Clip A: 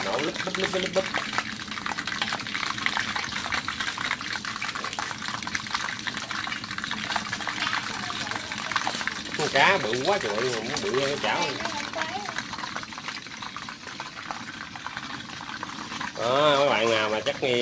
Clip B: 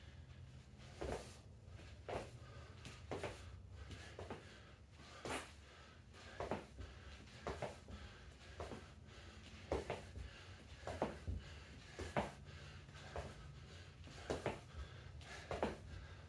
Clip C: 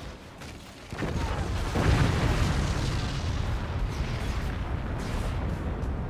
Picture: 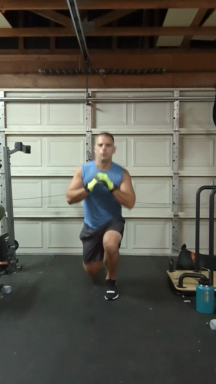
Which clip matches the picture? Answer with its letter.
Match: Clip B